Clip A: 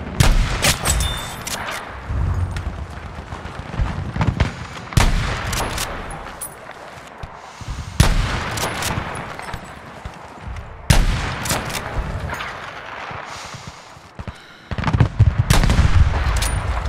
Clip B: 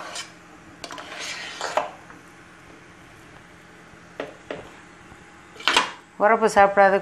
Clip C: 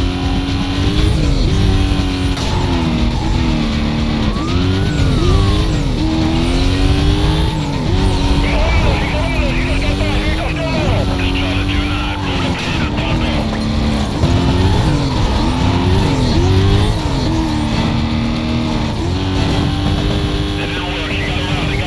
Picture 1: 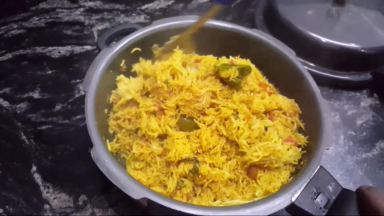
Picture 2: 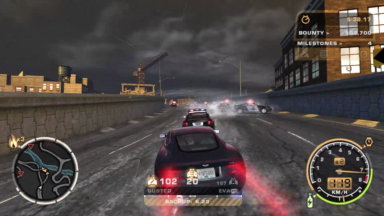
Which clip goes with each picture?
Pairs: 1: B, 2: C